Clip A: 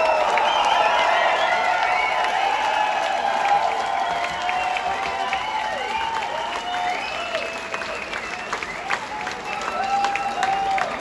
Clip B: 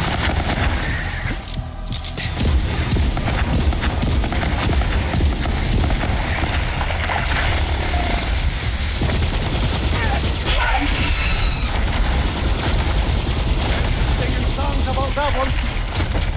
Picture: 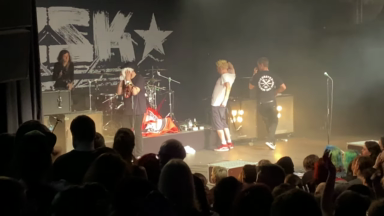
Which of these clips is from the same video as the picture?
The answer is A